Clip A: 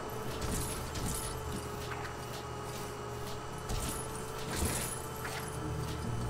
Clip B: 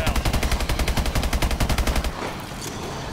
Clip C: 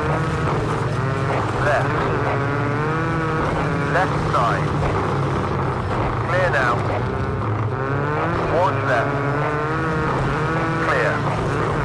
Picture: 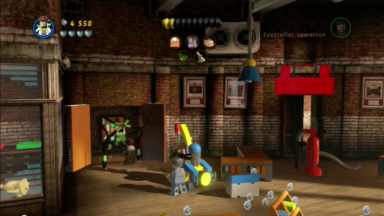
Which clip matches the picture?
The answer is A